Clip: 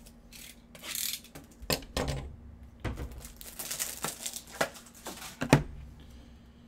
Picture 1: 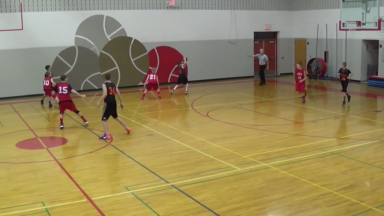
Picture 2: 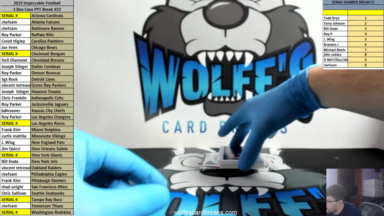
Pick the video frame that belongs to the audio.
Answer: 2